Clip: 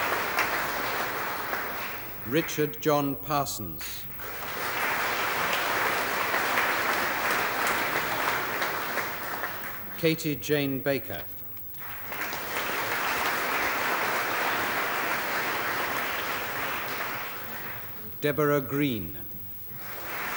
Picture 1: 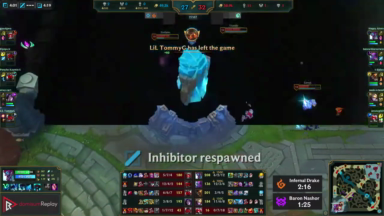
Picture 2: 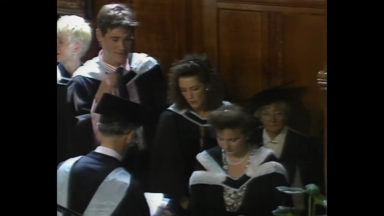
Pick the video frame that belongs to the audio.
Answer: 2